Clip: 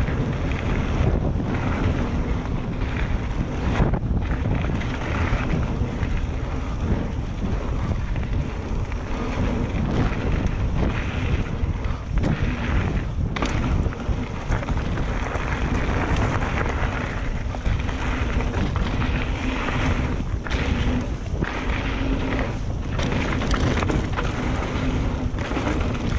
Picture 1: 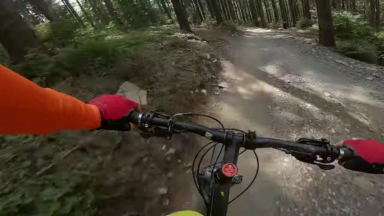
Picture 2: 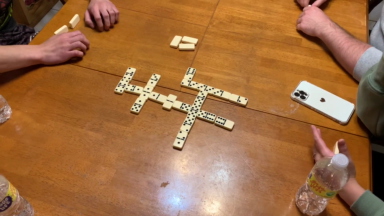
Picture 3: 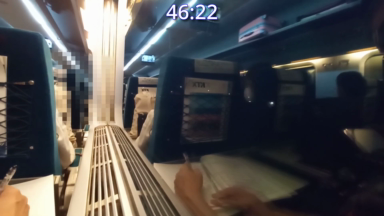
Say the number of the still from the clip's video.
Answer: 1